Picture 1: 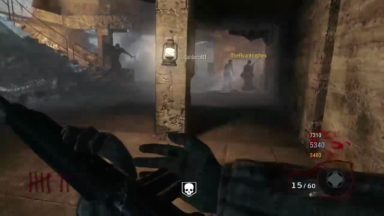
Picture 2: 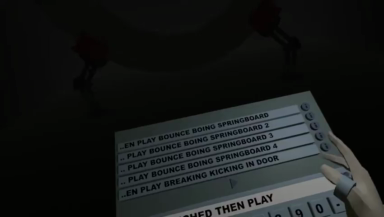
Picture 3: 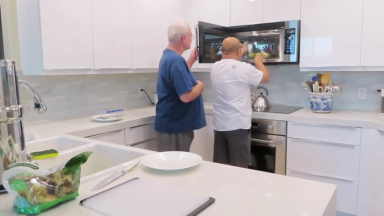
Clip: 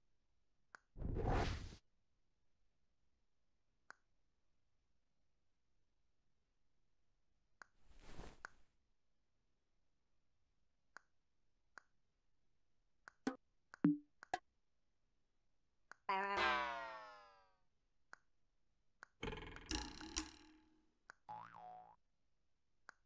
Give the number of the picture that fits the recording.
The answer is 2